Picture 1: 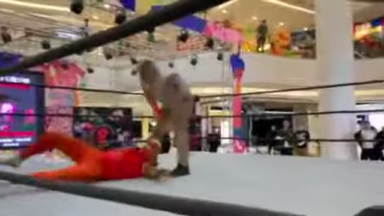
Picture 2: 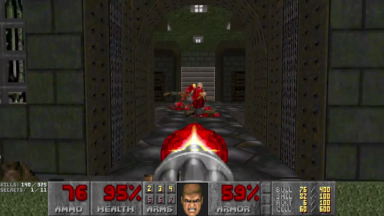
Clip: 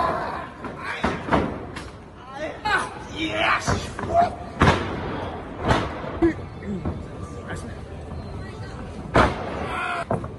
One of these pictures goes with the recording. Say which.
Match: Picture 1